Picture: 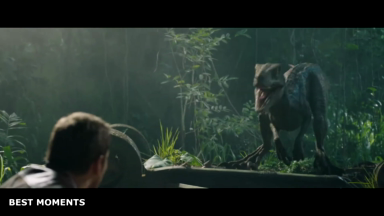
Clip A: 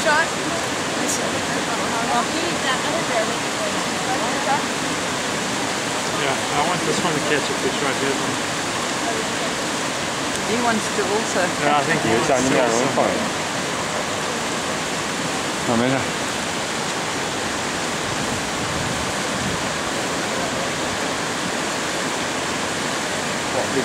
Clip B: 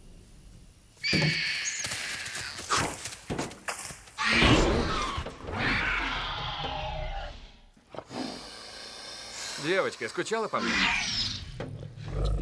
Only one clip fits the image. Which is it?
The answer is B